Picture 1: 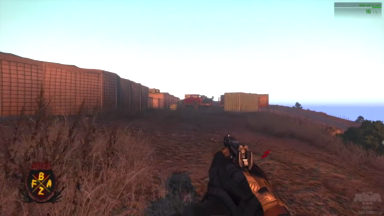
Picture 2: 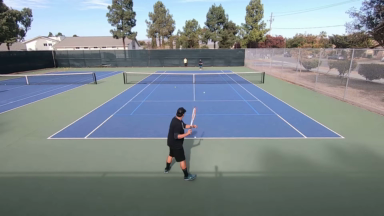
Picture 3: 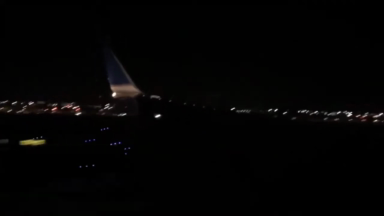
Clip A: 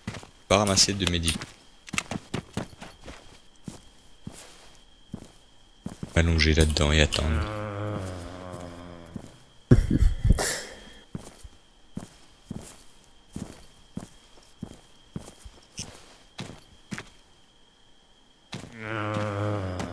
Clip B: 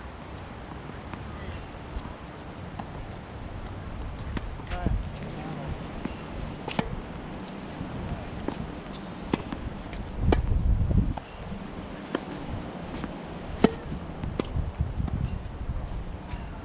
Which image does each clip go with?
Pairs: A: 1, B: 2